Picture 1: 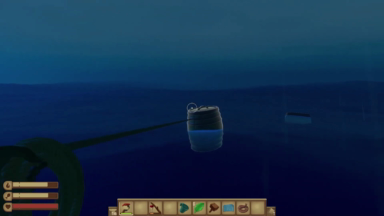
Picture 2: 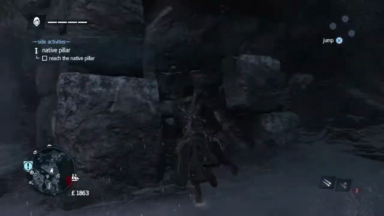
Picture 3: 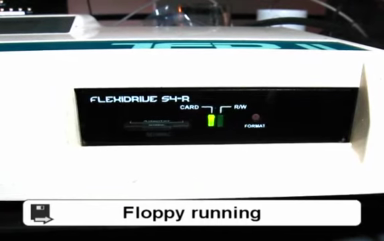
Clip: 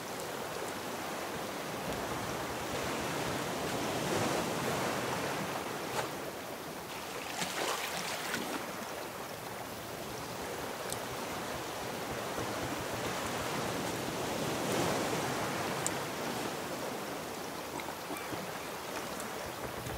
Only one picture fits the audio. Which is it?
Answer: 1